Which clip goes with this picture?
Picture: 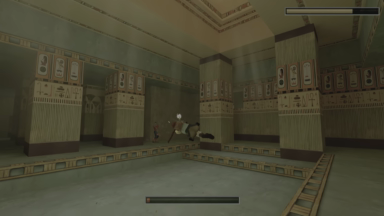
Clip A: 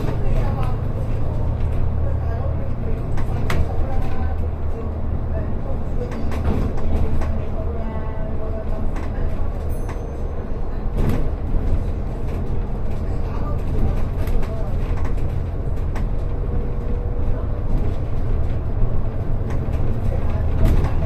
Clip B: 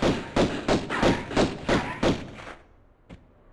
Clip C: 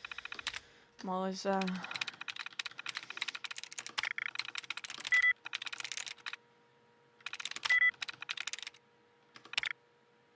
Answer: B